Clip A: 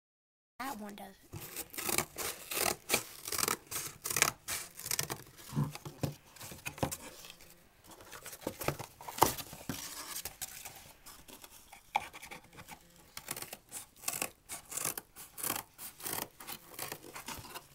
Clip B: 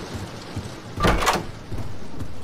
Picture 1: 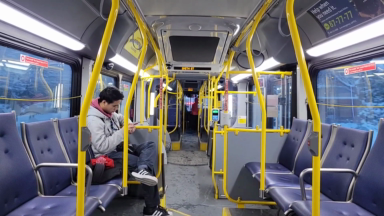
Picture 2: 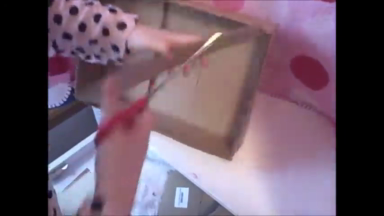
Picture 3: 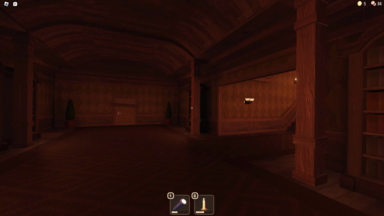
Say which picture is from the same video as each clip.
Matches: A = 2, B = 3